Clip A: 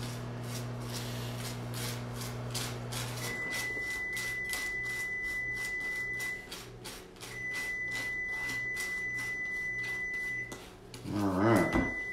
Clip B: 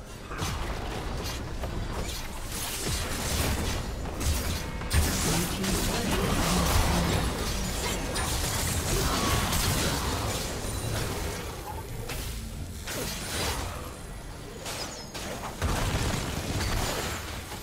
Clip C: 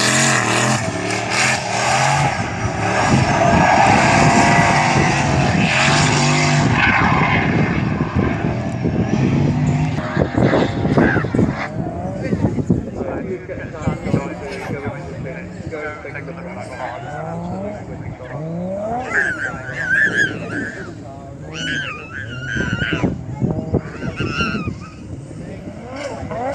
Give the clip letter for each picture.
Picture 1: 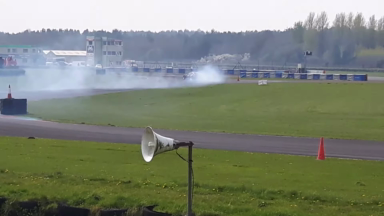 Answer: C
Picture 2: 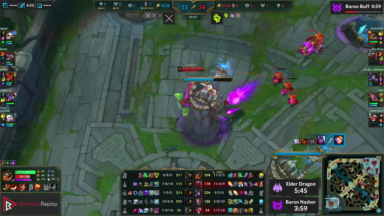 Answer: B